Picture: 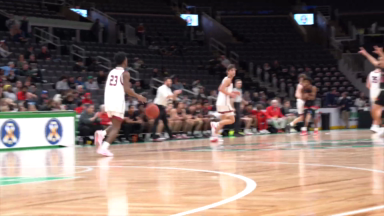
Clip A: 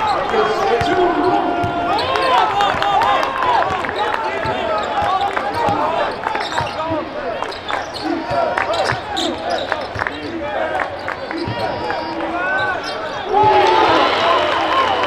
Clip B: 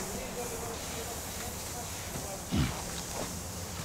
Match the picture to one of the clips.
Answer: A